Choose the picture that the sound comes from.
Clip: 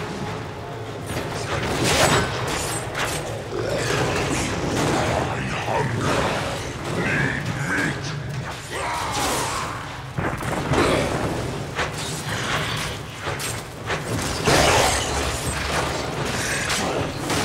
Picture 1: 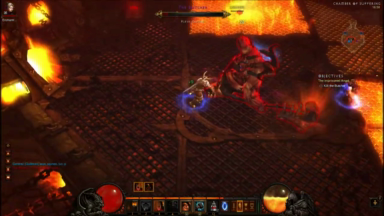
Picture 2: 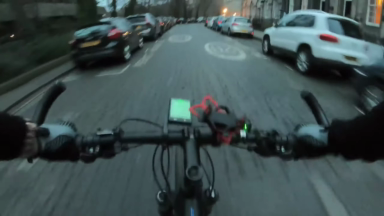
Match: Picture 1